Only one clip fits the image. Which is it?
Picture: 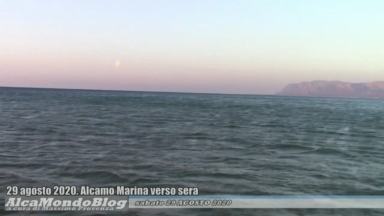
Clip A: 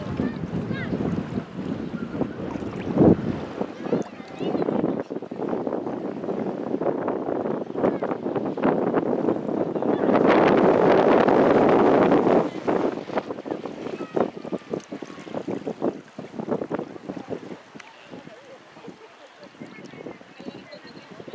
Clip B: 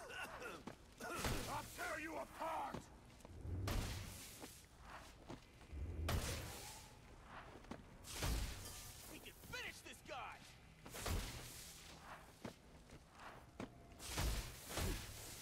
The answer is A